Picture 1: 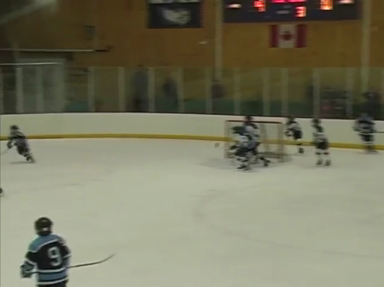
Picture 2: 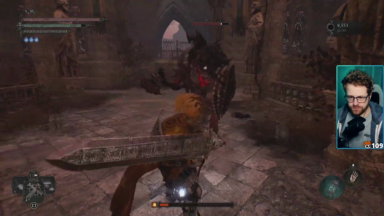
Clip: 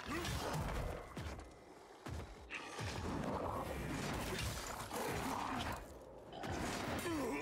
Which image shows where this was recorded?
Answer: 2